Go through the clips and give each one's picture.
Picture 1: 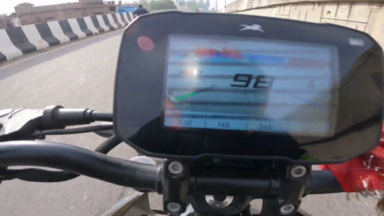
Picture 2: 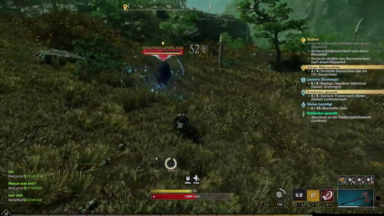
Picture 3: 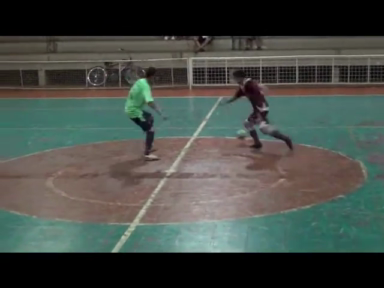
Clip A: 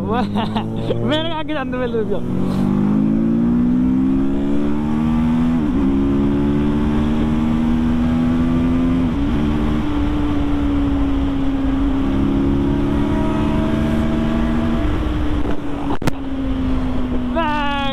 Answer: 1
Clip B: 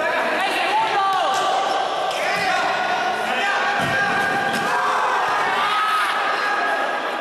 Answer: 3